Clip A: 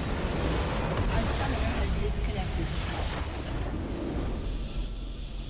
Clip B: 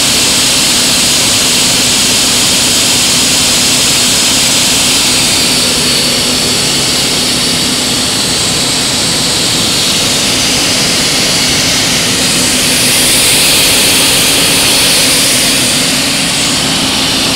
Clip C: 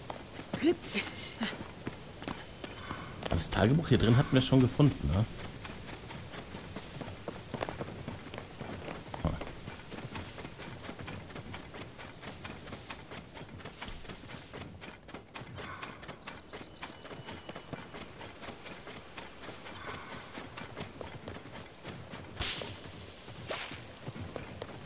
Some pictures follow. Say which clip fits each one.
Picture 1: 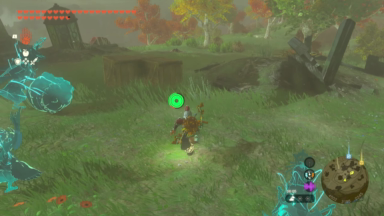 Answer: C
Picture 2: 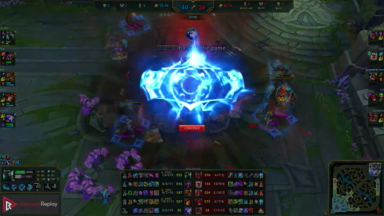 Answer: A